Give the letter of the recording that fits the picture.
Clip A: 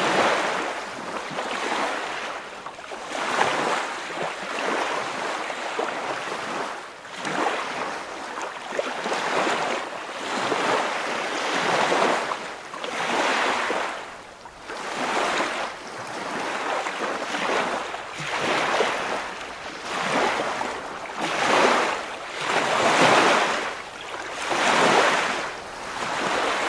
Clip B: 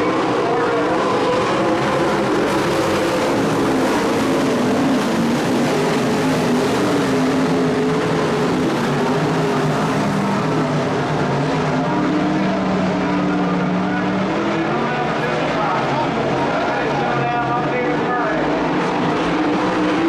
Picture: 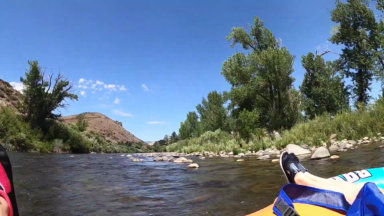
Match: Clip A